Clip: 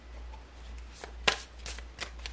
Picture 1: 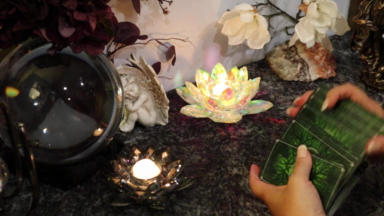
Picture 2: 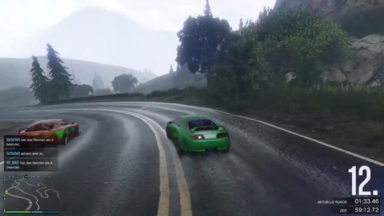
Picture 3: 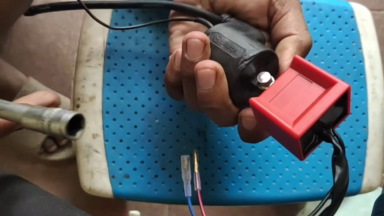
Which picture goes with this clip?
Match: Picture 1